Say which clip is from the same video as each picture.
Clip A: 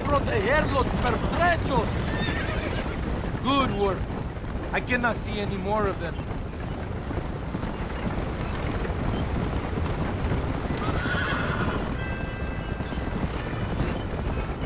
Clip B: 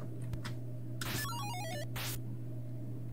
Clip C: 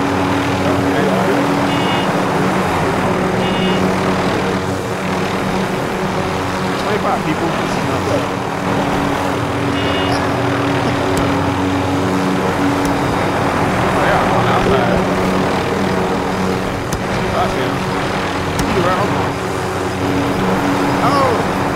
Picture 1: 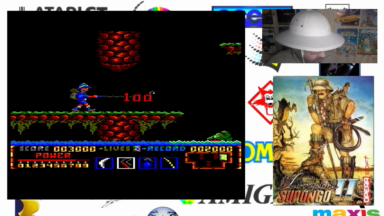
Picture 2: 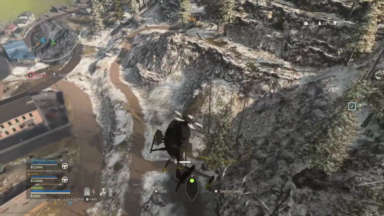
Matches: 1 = B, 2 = C